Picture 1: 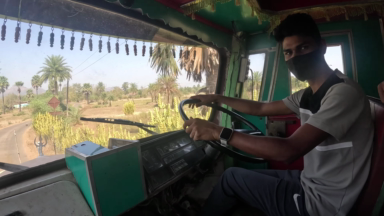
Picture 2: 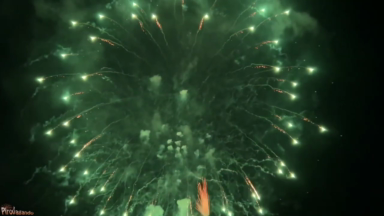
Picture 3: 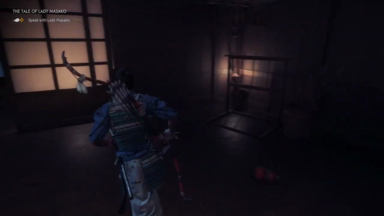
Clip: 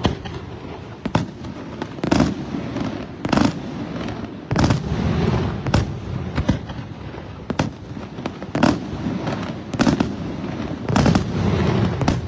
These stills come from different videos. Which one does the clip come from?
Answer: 2